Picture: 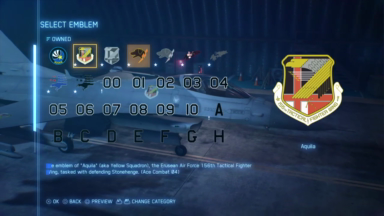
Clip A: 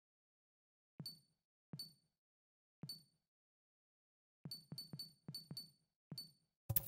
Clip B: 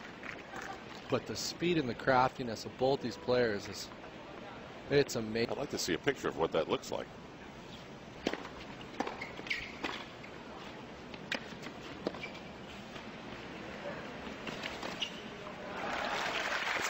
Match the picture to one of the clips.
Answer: A